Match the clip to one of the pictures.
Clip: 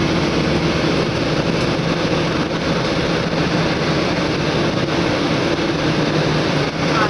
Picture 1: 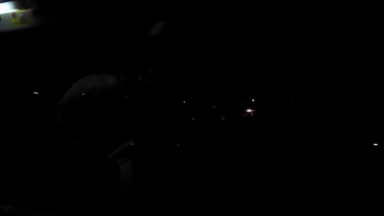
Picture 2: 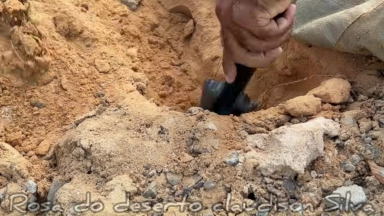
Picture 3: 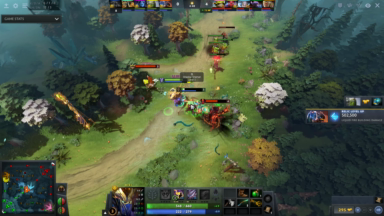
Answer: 1